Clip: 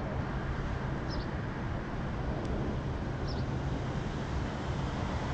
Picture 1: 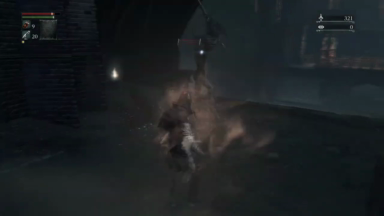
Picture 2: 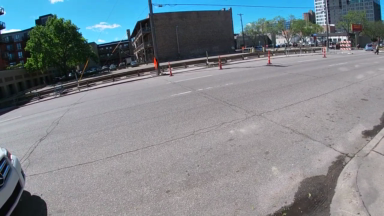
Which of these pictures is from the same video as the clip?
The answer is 2